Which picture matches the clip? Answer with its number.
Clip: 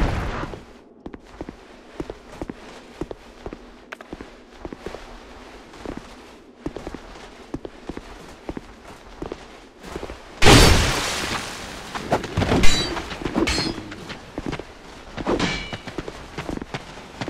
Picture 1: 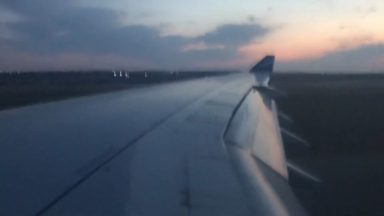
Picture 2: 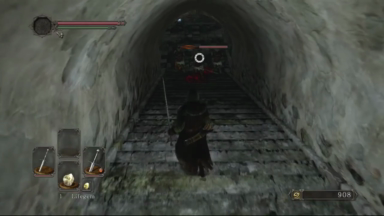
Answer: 2